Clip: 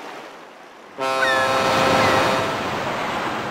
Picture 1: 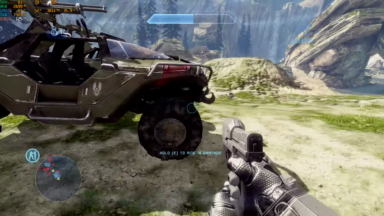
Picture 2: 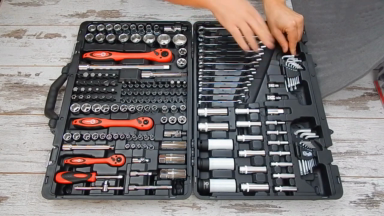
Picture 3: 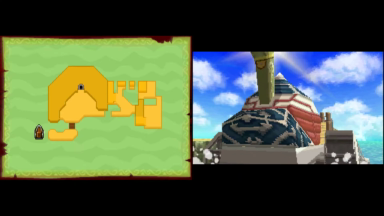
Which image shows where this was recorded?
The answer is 3